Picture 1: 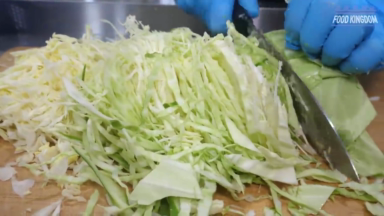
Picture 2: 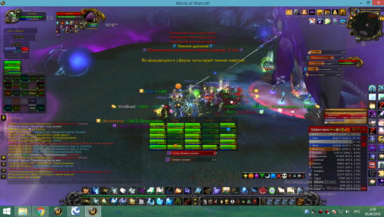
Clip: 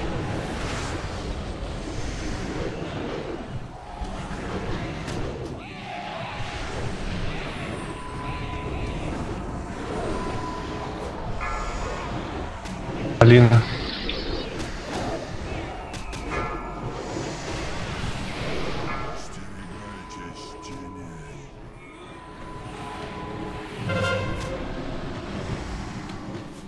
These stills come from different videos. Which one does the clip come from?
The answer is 2